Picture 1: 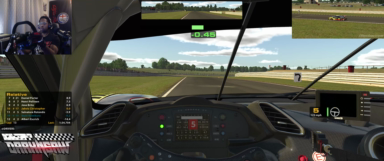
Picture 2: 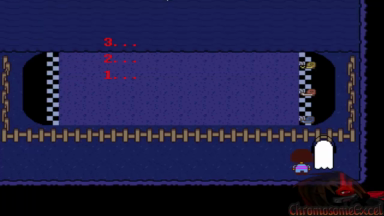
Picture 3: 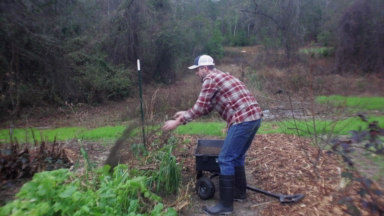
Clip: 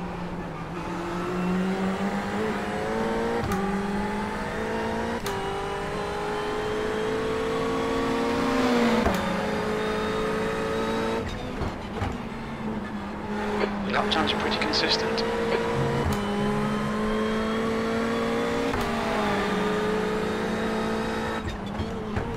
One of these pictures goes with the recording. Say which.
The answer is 1